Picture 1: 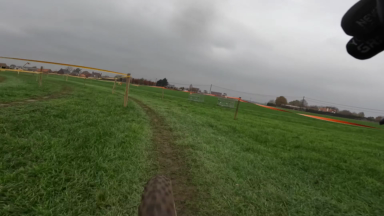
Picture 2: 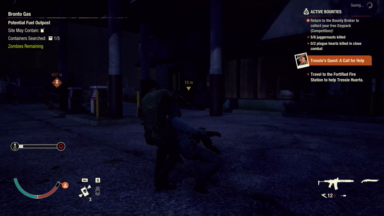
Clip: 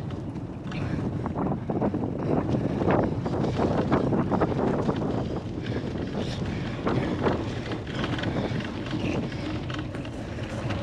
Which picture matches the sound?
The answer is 1